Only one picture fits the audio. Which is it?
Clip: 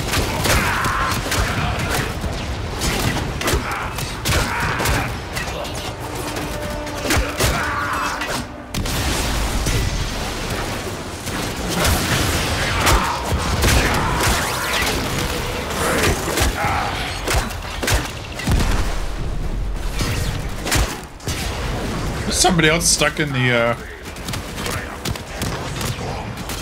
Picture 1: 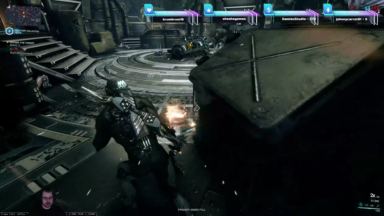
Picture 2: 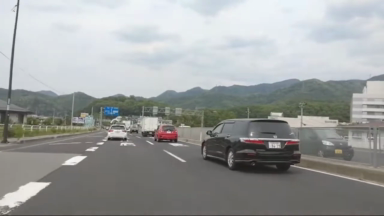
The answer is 1